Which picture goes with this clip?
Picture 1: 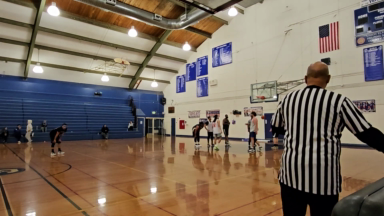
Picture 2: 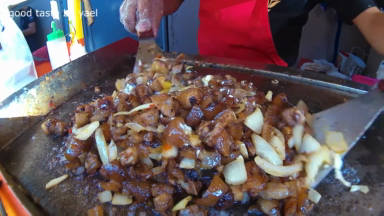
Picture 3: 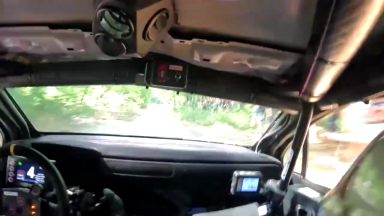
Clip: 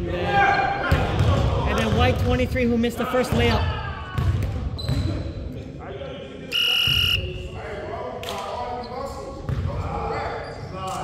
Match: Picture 1